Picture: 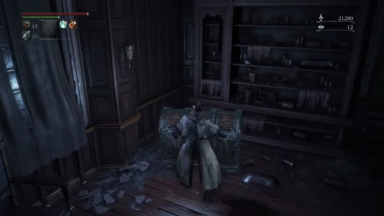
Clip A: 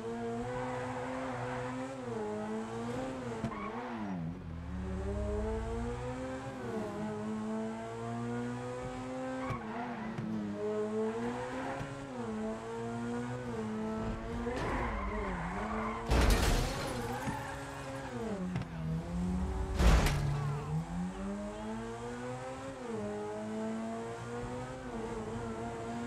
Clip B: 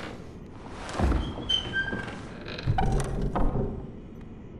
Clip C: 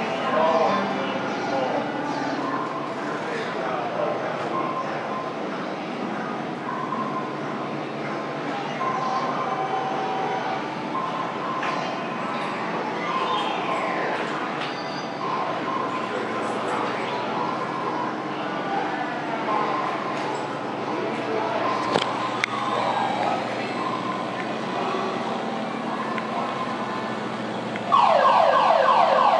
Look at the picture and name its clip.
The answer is B